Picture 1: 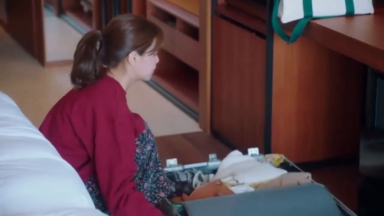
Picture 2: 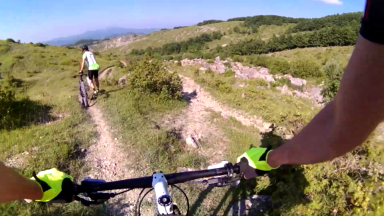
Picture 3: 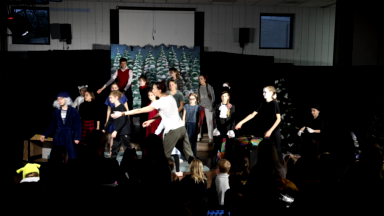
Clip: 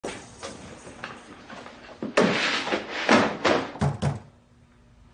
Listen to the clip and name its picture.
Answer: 1